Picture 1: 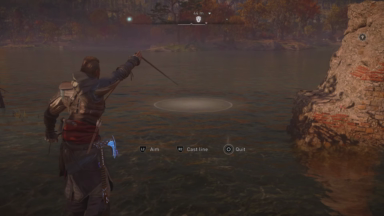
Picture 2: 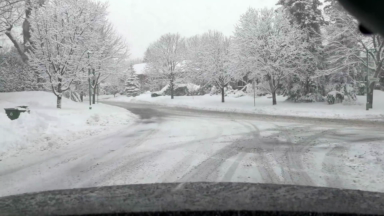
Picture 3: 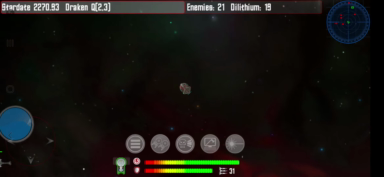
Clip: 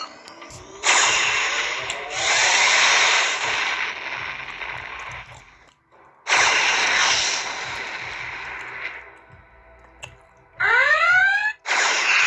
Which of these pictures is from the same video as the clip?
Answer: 3